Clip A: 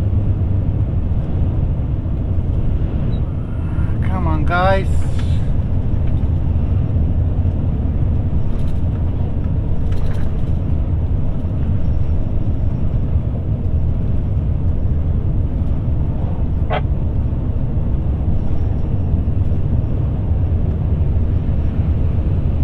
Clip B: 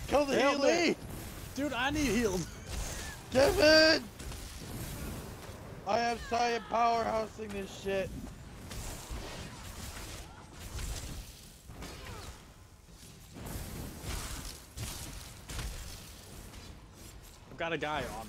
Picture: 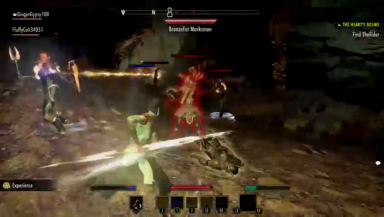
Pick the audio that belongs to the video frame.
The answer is B